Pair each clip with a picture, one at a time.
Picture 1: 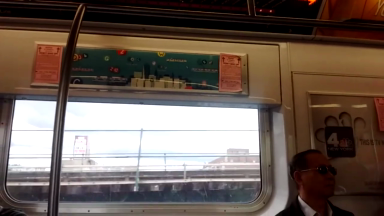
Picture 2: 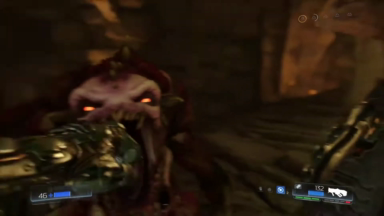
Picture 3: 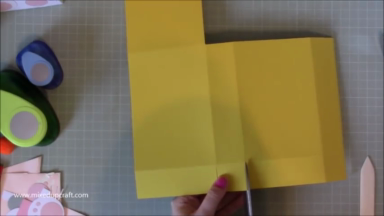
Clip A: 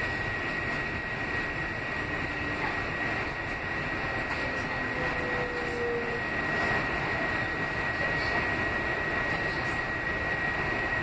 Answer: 1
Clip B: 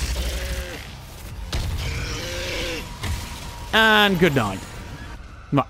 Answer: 2